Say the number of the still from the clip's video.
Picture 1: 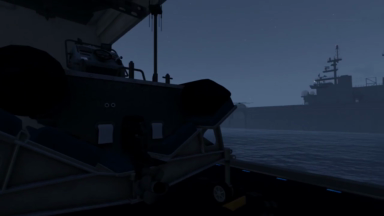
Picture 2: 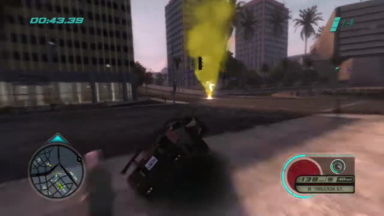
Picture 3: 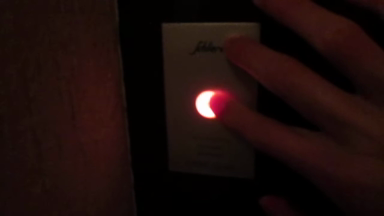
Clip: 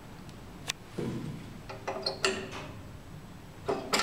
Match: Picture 3